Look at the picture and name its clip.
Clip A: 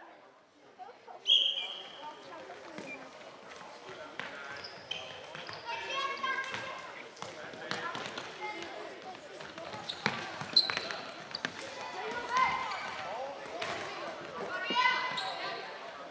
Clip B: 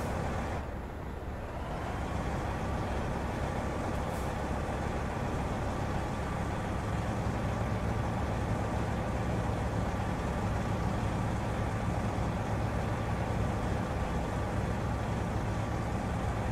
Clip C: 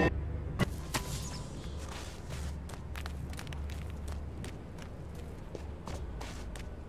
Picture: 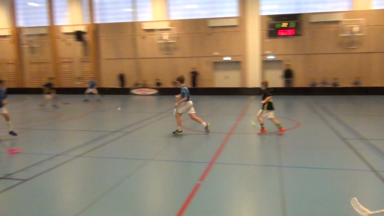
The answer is A